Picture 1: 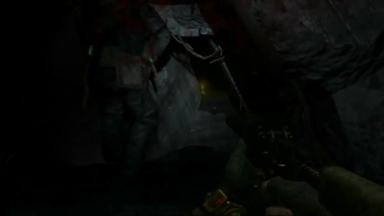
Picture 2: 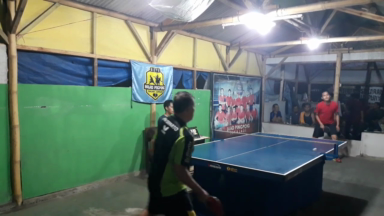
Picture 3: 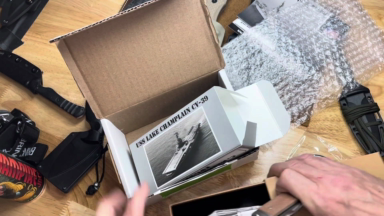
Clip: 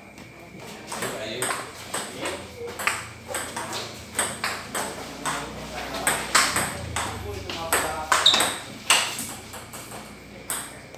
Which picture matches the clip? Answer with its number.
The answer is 2